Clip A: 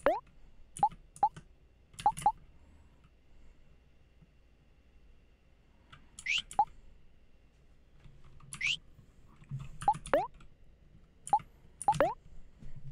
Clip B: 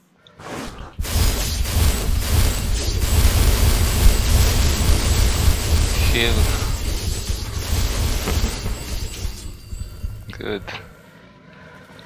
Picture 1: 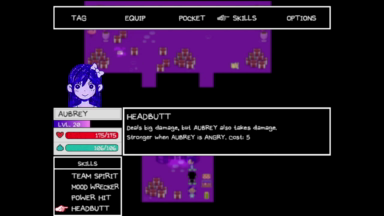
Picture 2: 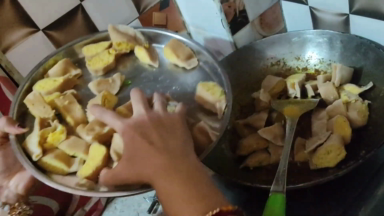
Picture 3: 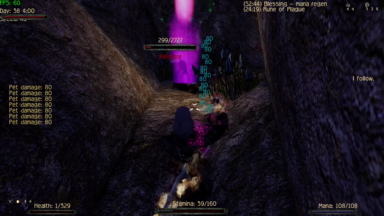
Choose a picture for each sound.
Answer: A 1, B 3